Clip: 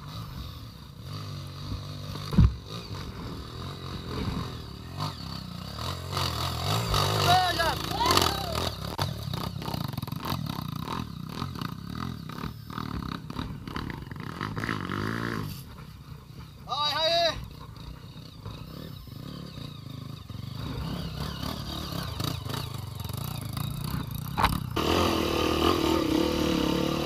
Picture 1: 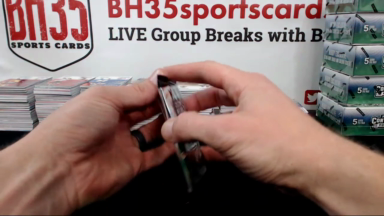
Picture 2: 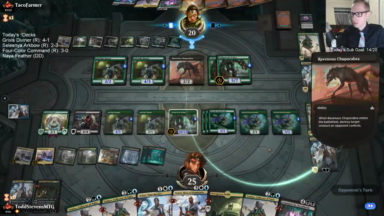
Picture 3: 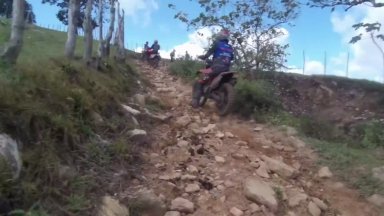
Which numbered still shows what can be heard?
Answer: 3